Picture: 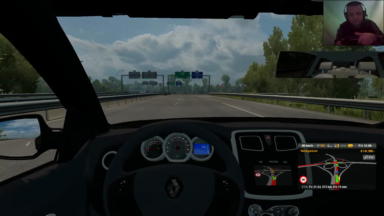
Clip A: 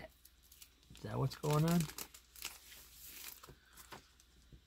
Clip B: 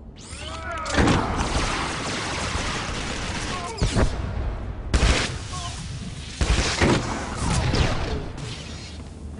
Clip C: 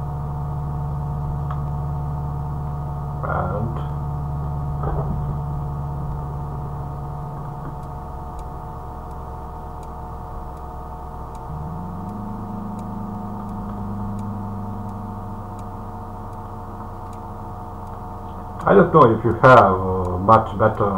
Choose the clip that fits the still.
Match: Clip C